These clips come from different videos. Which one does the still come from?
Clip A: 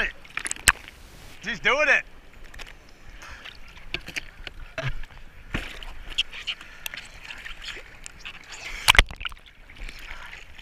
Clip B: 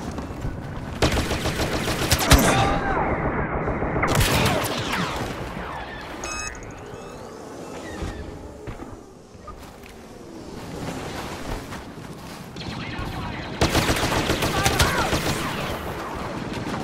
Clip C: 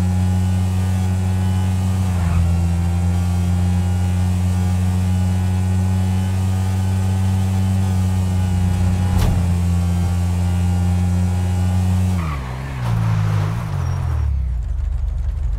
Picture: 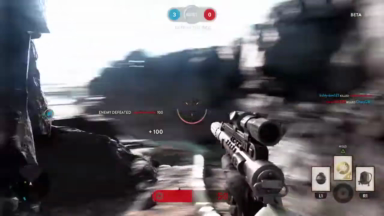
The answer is B